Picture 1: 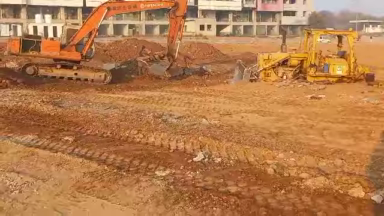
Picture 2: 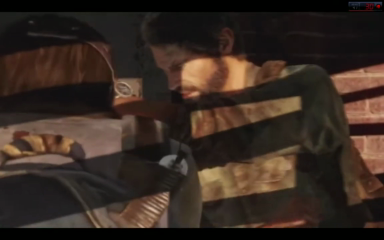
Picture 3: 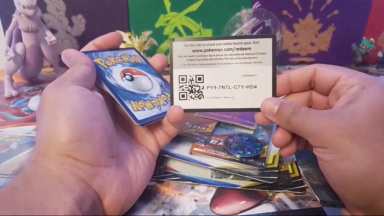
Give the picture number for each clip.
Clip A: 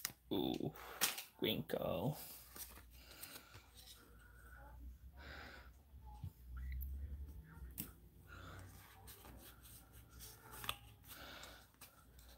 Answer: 3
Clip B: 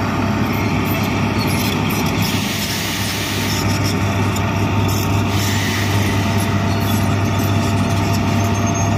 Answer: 1